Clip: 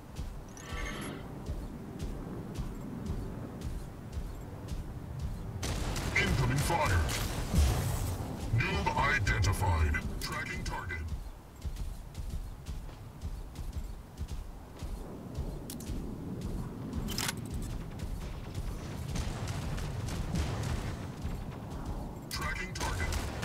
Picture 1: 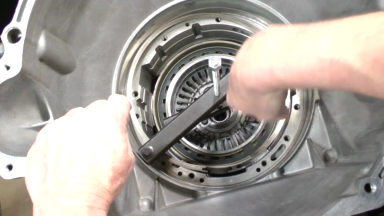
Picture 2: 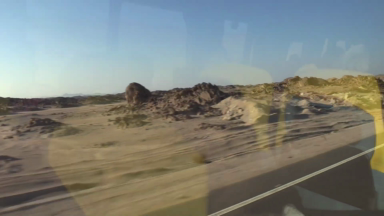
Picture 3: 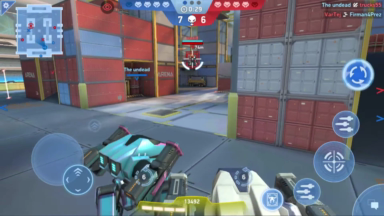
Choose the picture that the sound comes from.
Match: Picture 3